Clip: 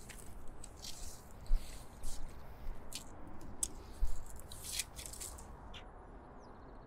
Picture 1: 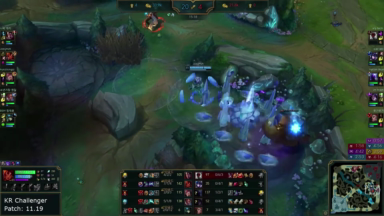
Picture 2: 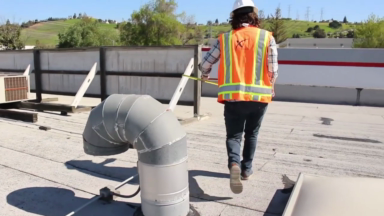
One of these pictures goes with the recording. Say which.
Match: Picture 2